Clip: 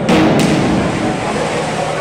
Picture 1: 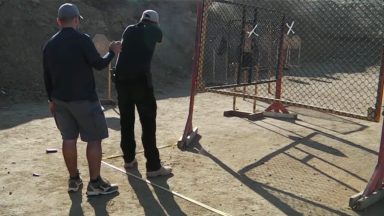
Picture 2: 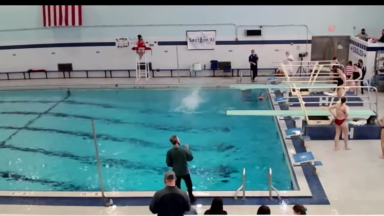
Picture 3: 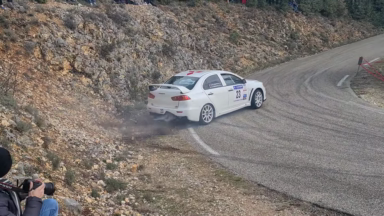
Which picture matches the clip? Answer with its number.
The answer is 2